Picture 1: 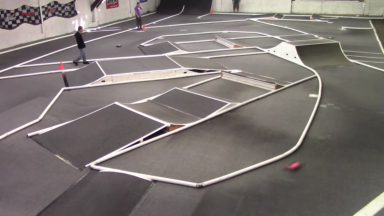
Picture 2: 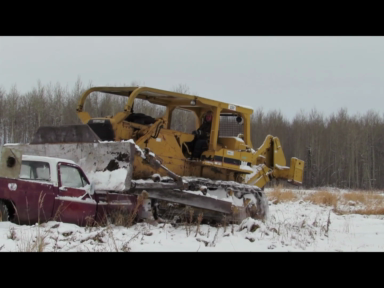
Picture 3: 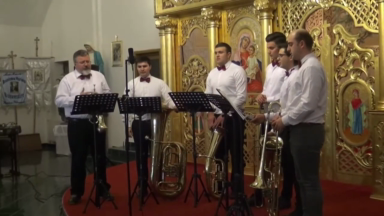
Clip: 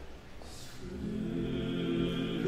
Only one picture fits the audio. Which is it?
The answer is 3